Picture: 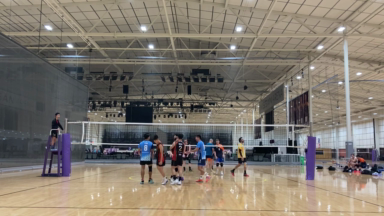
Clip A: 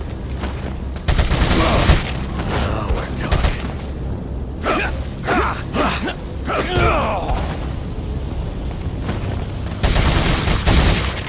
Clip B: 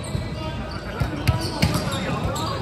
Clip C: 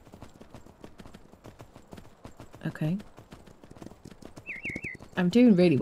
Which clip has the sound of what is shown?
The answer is B